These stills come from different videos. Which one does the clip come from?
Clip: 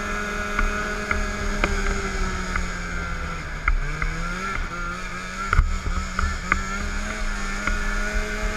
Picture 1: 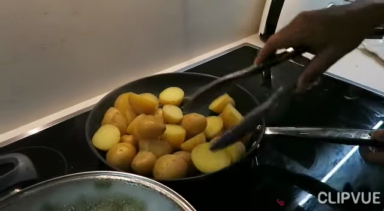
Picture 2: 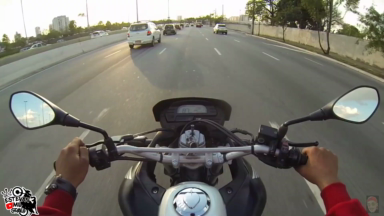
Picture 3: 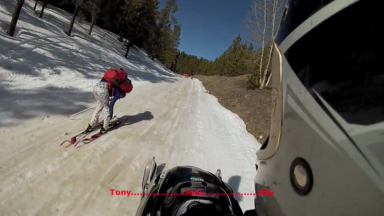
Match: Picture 3